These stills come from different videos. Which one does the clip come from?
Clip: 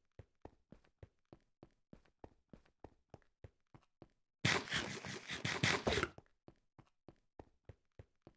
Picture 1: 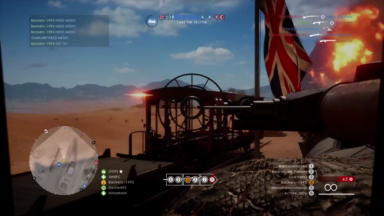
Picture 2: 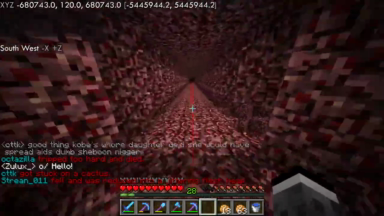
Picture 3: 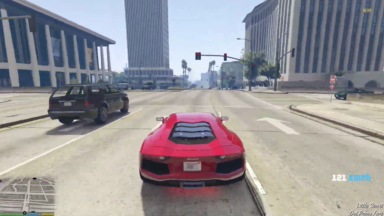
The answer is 2